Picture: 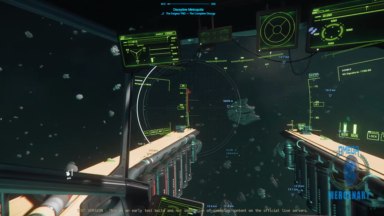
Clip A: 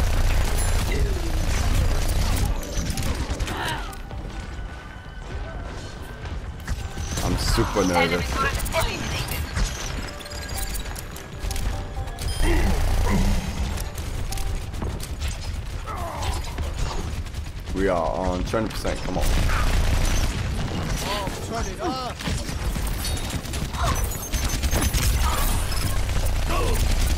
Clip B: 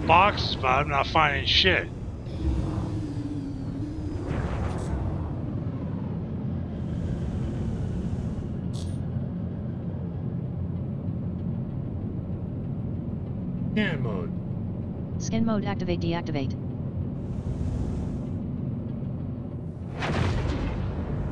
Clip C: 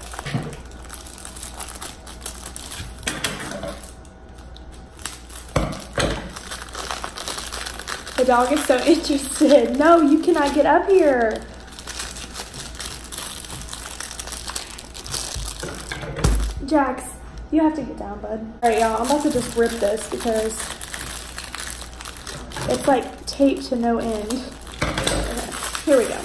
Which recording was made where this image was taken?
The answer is B